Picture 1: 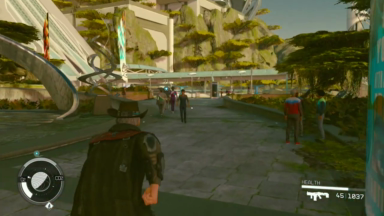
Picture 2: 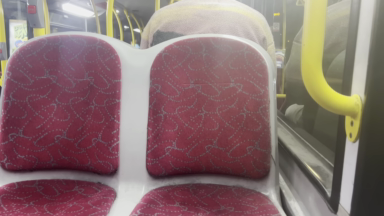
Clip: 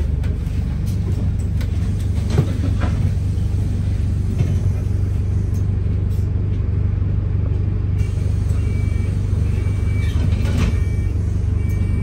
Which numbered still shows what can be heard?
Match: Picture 2